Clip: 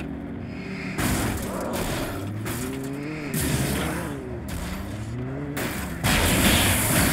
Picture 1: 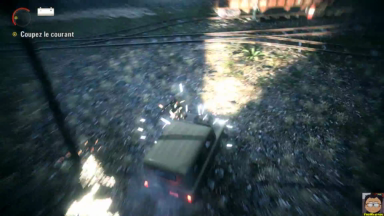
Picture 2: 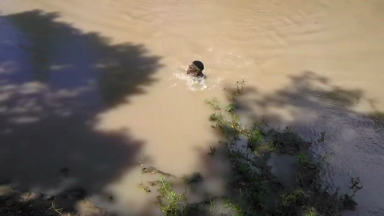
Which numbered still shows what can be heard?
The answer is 1